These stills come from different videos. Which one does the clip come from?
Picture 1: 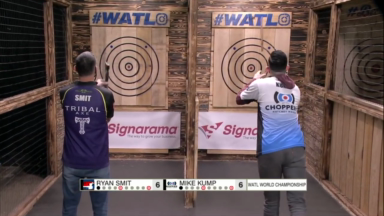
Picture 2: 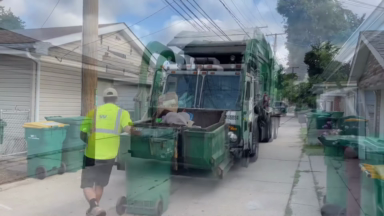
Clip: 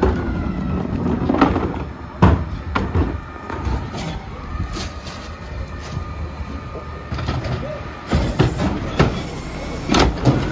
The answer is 2